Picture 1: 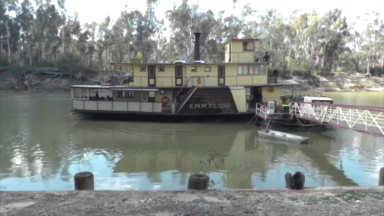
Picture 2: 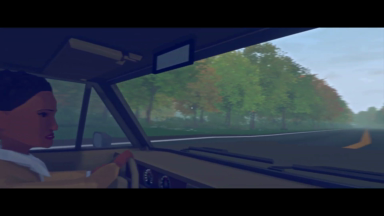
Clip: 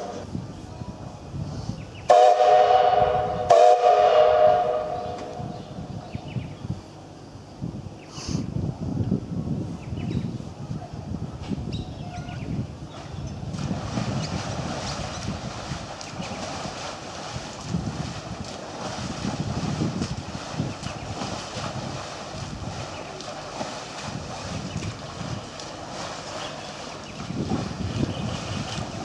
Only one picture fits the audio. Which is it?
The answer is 1